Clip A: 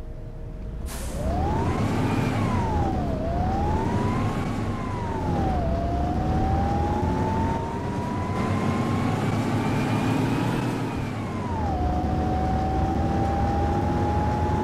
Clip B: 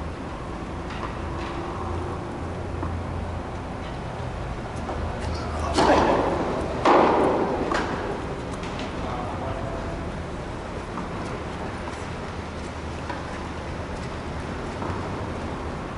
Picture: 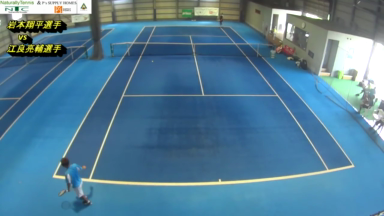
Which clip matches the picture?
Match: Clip B